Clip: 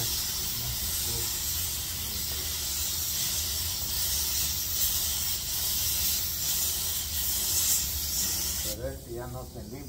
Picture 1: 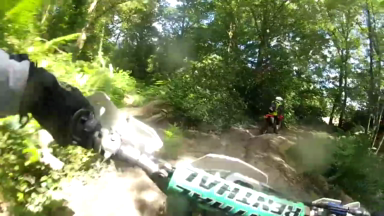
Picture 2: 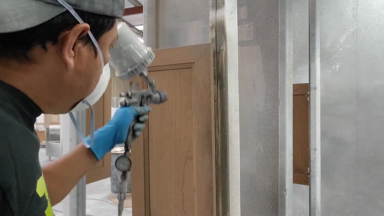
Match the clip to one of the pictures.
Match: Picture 2